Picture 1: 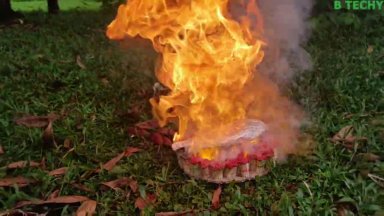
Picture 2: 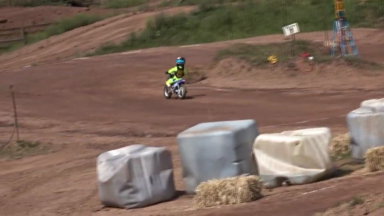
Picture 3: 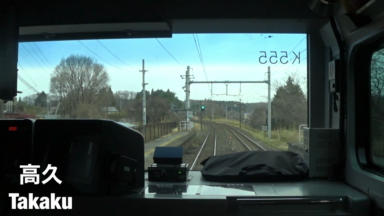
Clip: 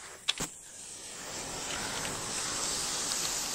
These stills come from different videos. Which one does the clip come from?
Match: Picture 1